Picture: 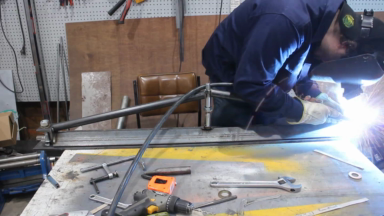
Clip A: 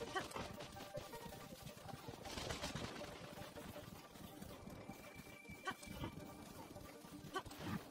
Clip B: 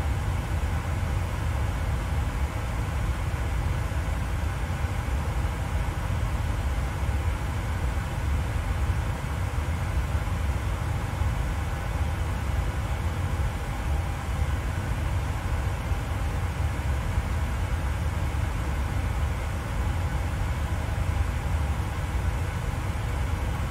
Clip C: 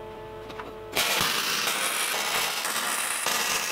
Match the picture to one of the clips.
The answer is C